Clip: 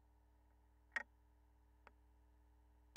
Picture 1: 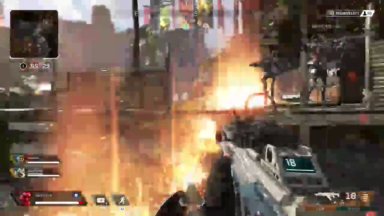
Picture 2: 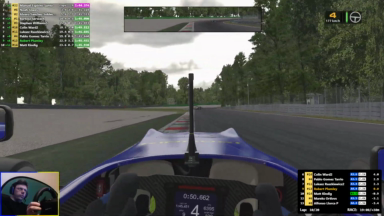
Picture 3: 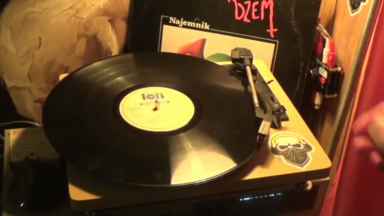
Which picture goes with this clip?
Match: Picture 3